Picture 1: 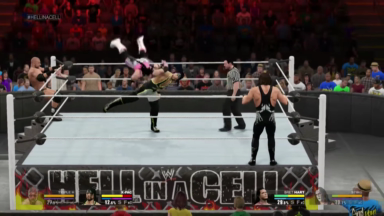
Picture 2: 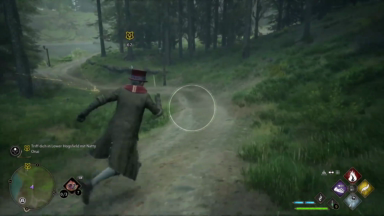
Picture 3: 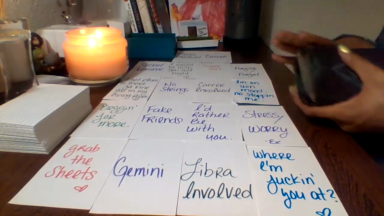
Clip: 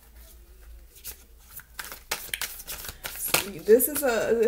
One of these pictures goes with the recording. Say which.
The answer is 3